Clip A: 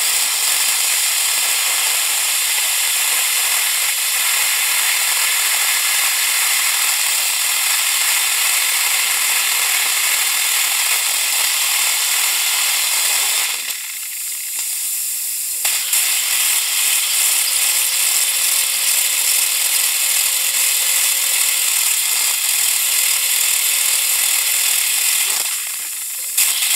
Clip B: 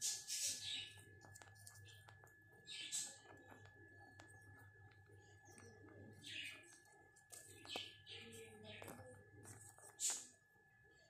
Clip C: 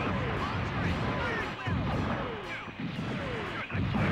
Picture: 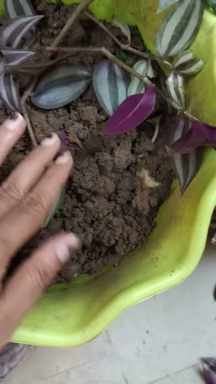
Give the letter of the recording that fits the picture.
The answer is B